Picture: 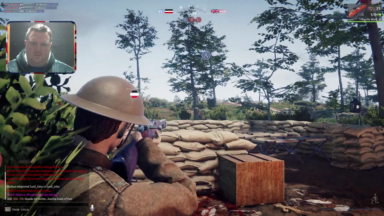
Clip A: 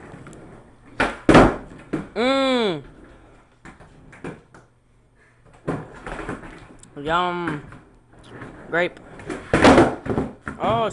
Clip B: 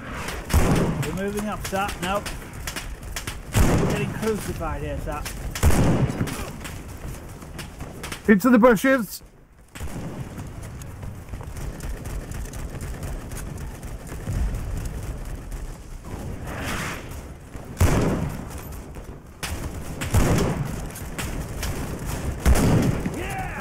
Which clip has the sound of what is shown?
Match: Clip B